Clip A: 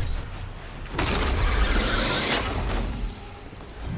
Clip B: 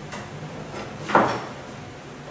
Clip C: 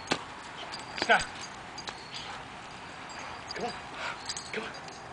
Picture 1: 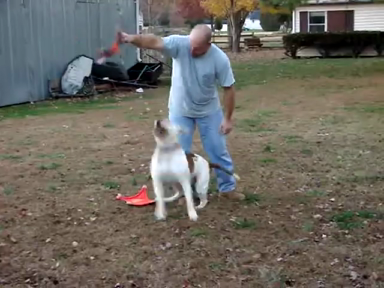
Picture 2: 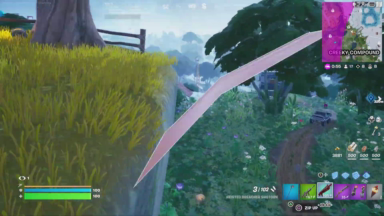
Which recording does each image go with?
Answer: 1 C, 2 A